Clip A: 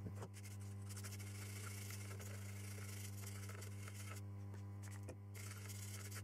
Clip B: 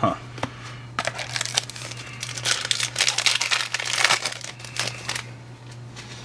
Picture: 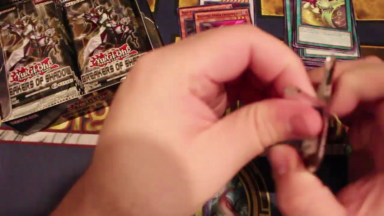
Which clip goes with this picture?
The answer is B